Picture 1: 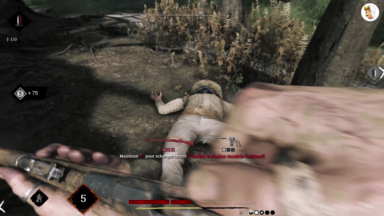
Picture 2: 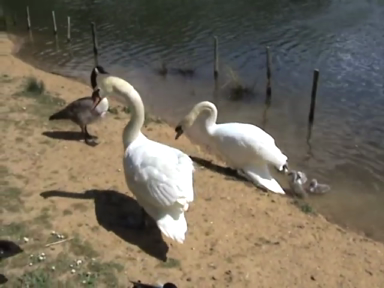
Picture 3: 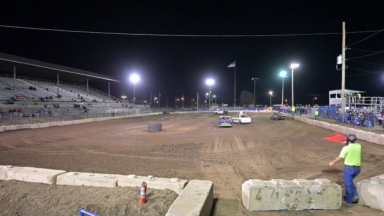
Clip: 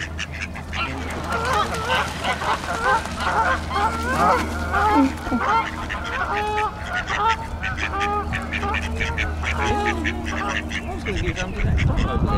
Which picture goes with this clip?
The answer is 2